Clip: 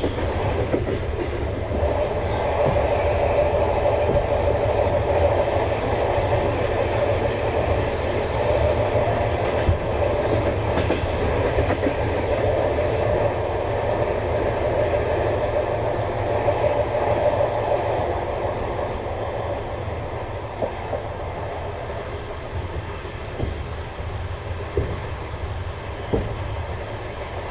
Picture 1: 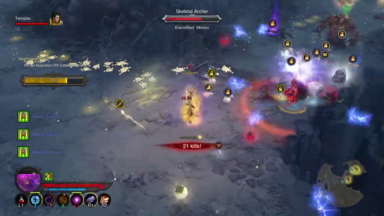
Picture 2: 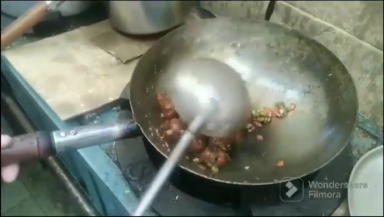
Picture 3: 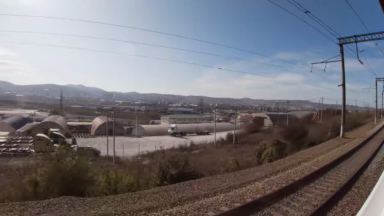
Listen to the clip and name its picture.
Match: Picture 3